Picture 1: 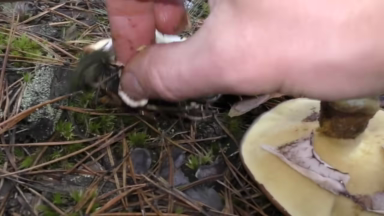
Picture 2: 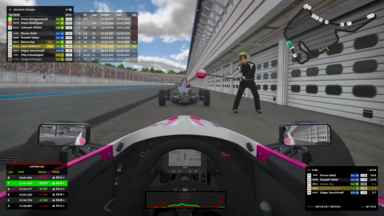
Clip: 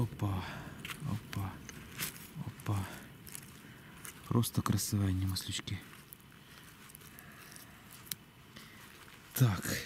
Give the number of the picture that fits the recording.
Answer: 1